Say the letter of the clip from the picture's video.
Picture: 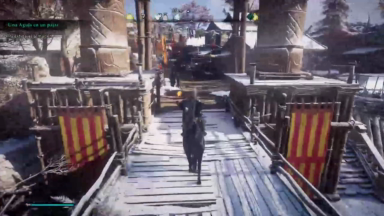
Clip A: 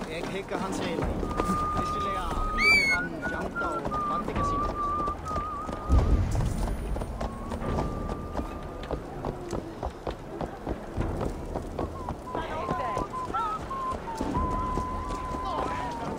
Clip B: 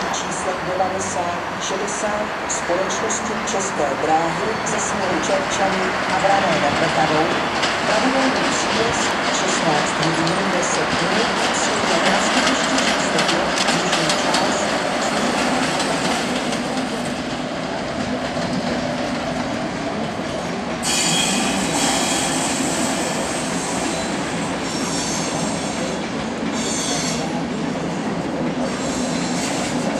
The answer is A